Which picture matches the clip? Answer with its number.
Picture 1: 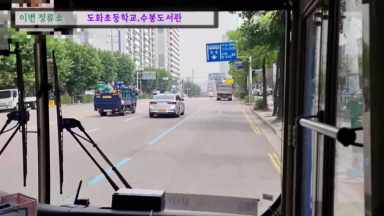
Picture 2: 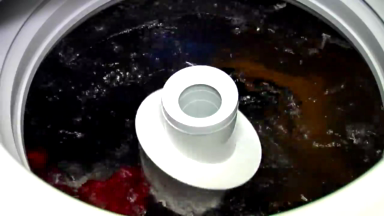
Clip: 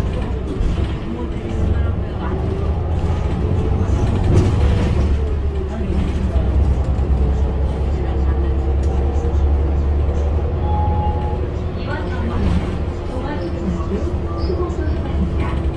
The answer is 1